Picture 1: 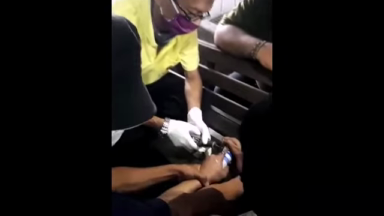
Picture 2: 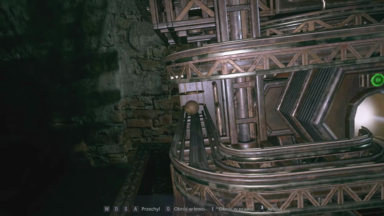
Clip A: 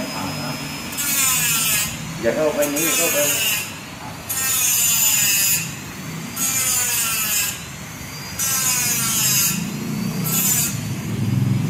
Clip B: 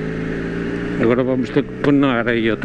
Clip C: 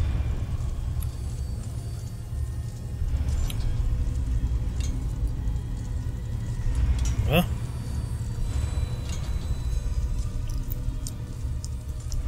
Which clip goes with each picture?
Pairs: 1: A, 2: C